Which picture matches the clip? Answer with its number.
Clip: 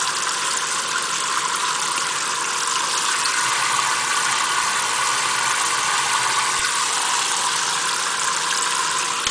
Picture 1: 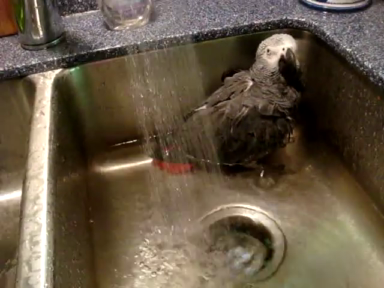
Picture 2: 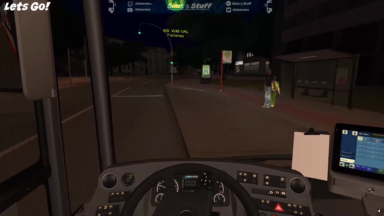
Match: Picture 1